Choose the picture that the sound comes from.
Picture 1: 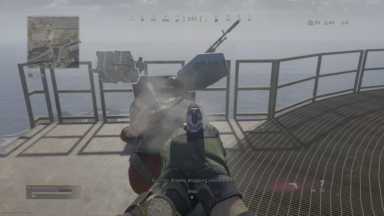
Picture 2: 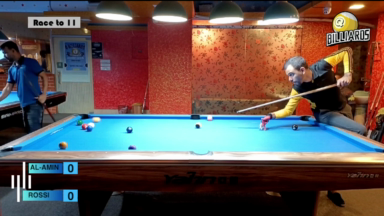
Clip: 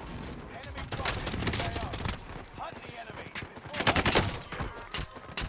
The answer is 1